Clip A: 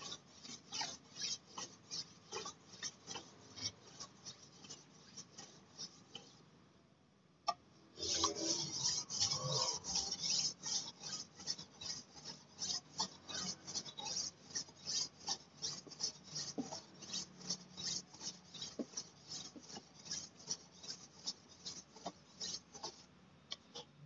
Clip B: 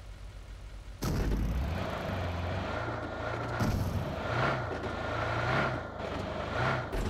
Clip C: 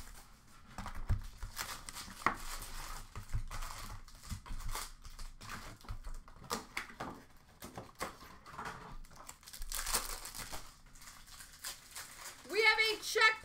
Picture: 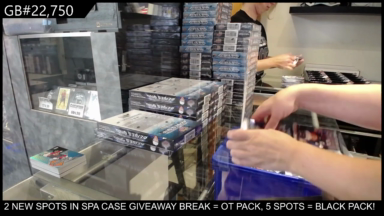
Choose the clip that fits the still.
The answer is C